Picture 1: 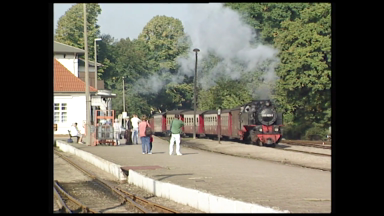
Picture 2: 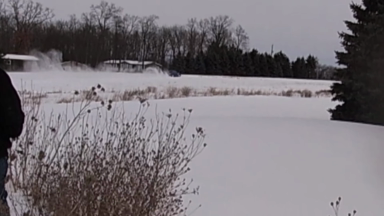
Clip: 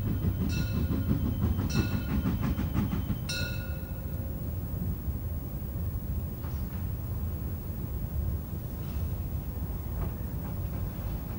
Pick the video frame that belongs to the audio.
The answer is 1